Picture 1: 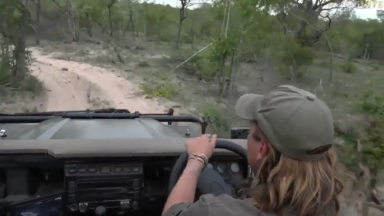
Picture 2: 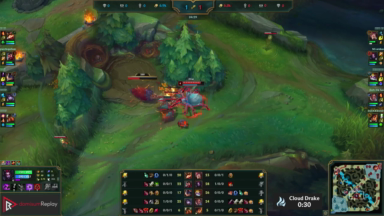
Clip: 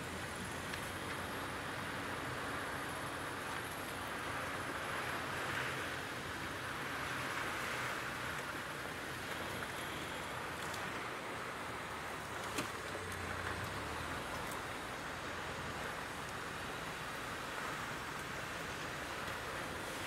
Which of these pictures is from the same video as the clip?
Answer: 1